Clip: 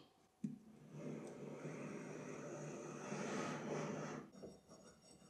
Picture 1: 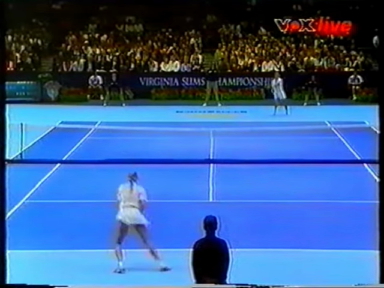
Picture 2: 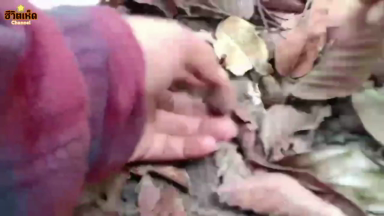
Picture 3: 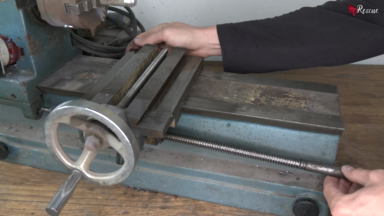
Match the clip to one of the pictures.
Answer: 3